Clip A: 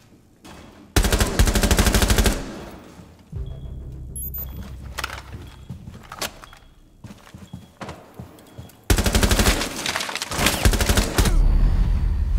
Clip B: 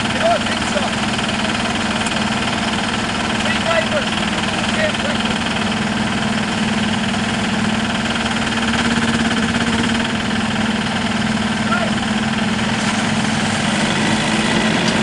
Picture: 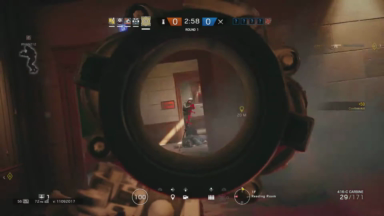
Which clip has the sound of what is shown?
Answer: A